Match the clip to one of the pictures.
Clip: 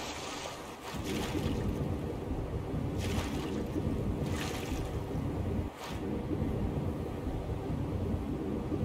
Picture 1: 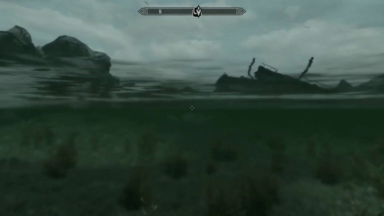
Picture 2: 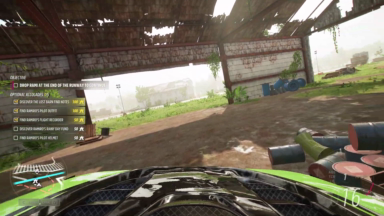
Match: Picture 1